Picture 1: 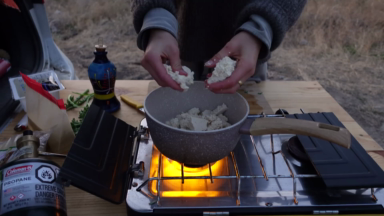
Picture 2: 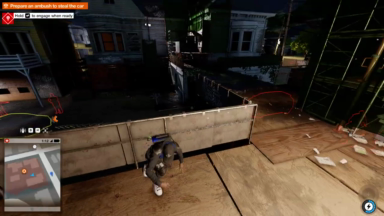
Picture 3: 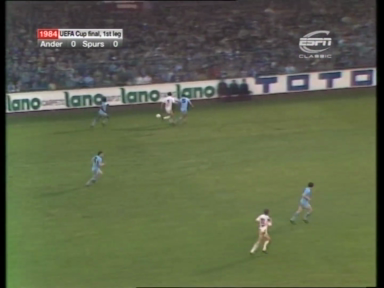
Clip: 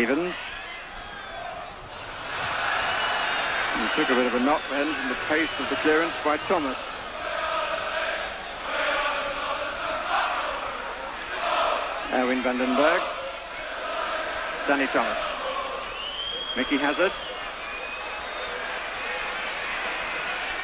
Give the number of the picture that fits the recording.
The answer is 3